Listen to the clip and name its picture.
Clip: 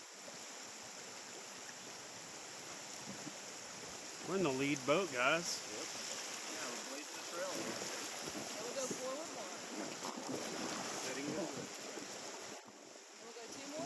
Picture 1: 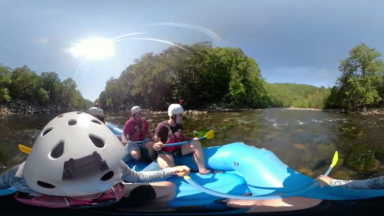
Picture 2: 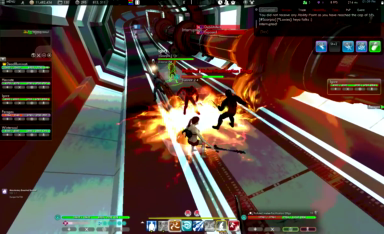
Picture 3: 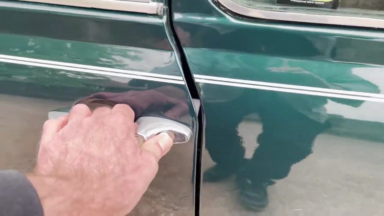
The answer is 1